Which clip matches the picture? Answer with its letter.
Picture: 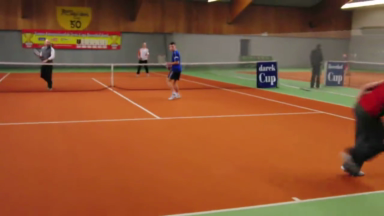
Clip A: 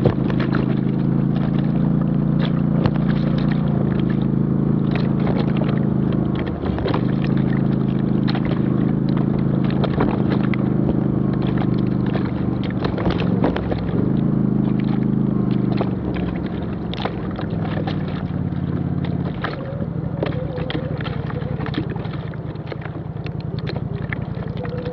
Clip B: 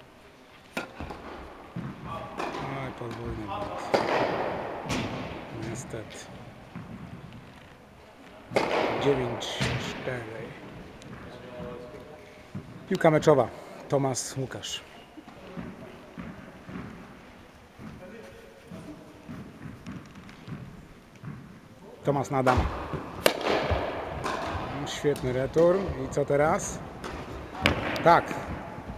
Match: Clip B